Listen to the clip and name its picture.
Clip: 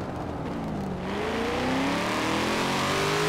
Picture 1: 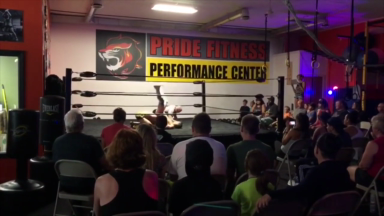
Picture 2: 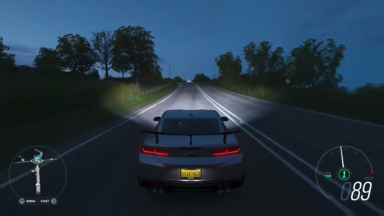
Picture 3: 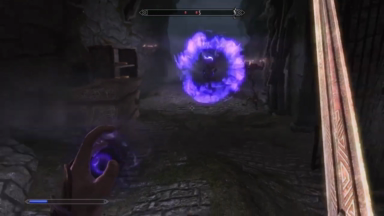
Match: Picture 2